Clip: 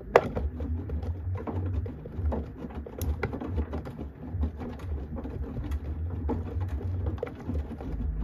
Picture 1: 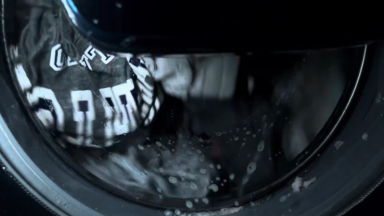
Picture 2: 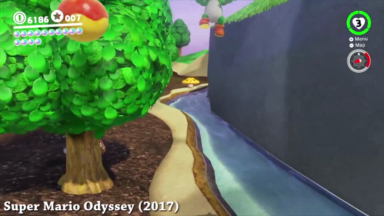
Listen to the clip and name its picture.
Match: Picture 1